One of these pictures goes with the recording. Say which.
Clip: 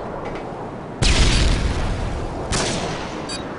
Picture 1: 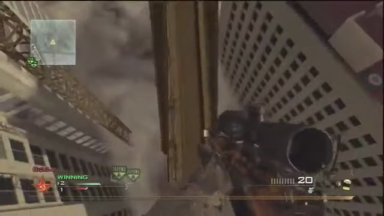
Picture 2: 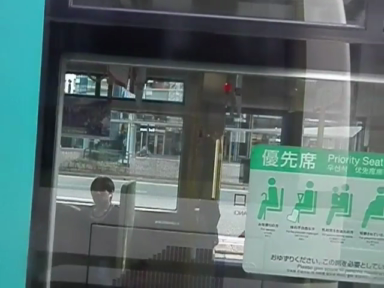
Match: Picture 1